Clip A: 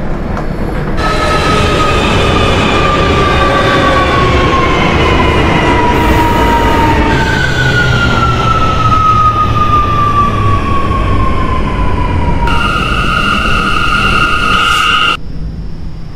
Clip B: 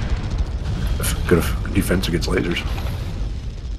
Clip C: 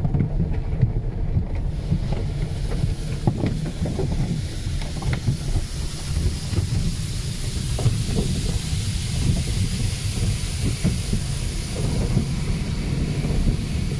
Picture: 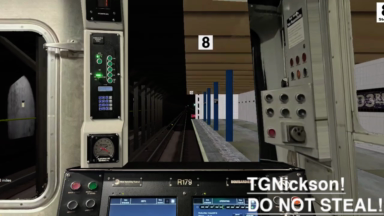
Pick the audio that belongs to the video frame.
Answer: A